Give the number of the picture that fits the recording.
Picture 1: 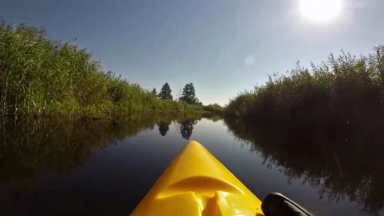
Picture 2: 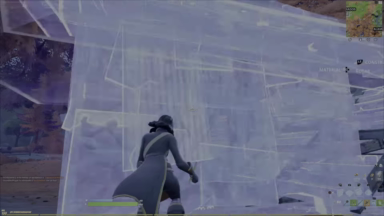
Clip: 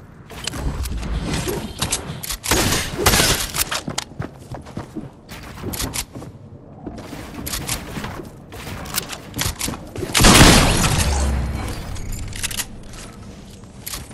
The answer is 2